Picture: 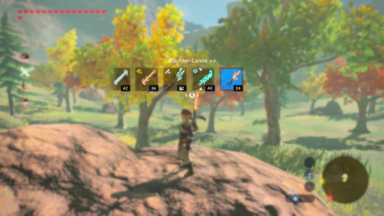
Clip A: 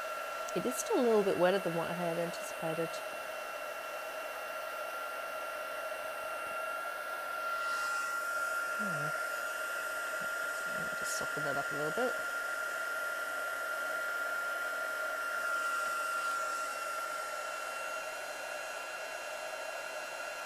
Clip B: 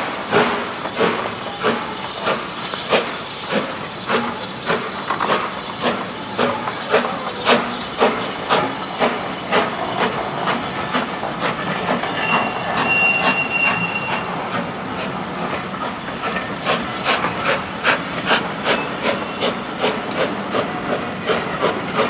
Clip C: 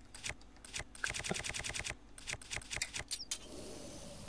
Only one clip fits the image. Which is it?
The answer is C